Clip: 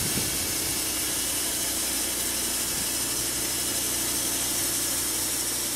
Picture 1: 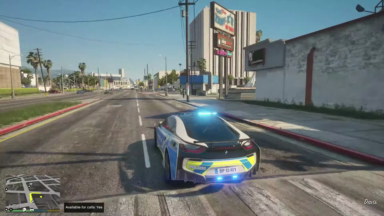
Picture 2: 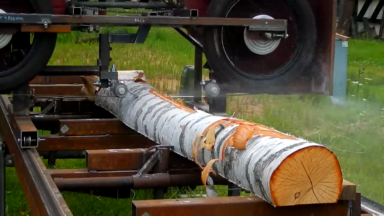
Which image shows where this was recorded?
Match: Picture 2